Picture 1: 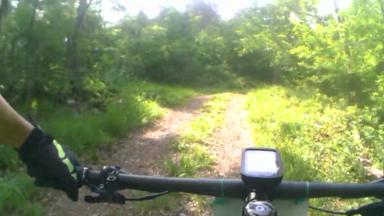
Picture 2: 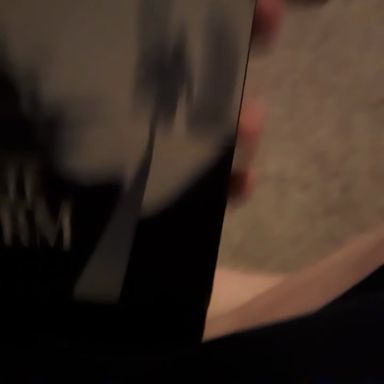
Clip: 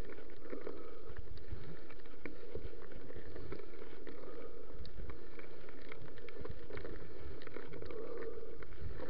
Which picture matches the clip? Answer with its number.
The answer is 1